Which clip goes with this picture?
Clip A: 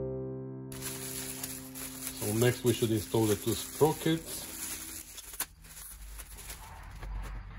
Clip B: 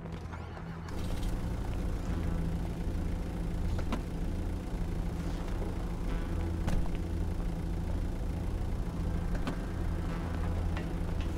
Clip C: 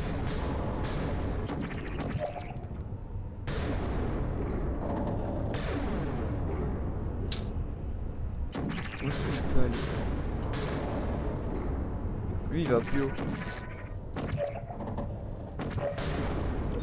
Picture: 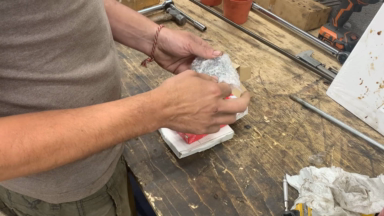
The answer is A